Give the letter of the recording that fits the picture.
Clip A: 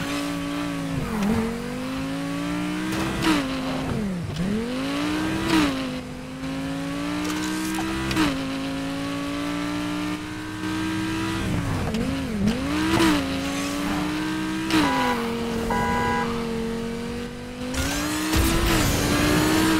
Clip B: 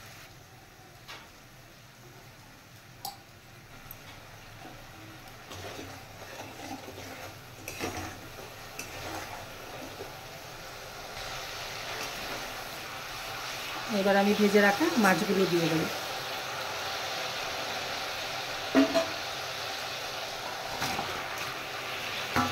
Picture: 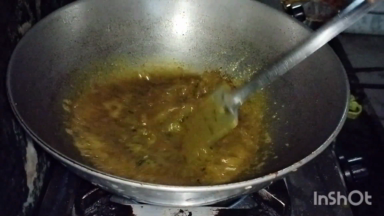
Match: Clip B